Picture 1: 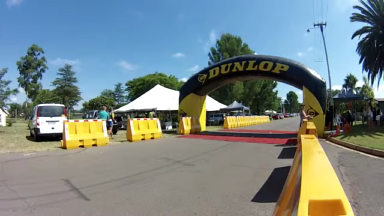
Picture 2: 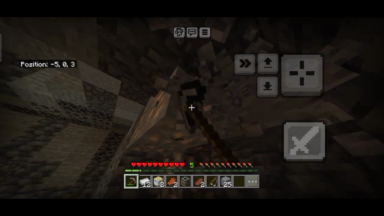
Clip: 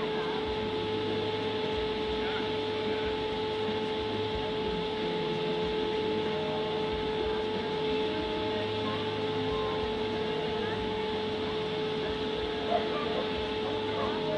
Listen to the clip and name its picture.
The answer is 1